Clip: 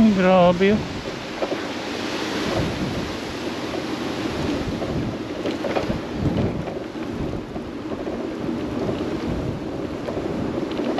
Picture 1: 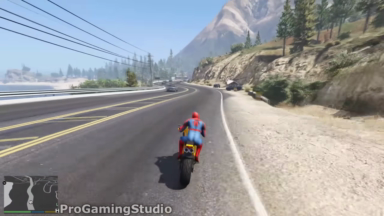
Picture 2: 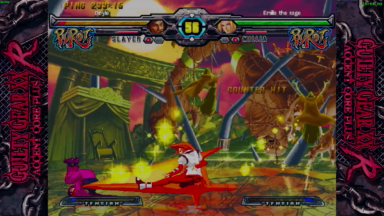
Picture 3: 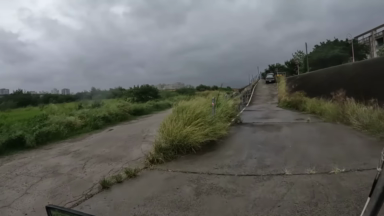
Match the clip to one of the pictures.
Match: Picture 3